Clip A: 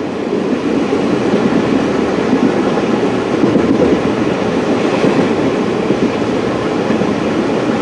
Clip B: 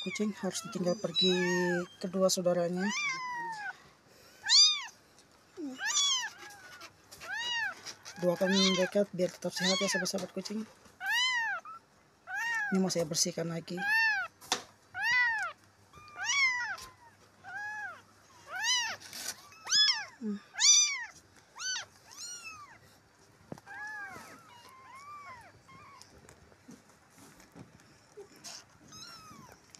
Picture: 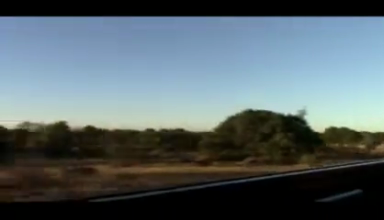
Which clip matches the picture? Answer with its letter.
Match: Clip A